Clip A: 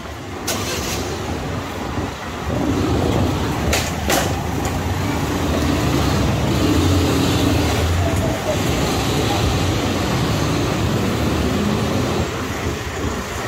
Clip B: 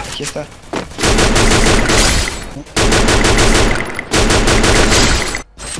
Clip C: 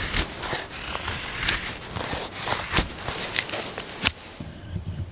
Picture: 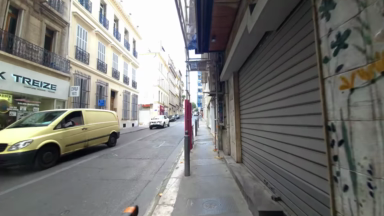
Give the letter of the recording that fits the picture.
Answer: A